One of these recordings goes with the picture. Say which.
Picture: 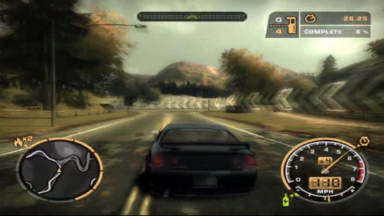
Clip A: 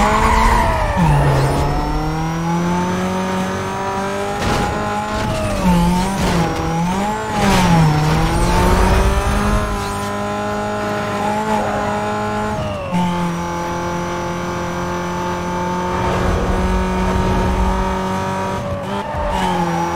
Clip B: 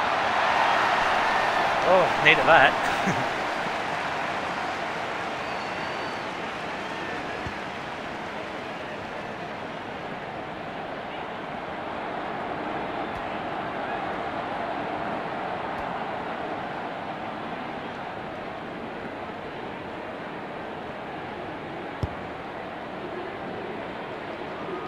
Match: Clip A